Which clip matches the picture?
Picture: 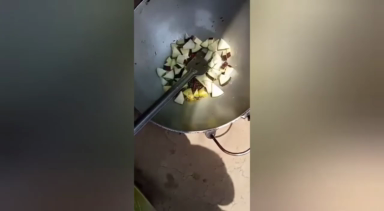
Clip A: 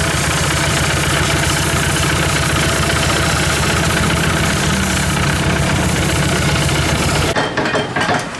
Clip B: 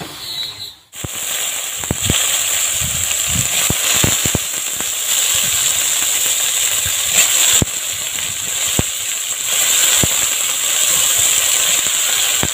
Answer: B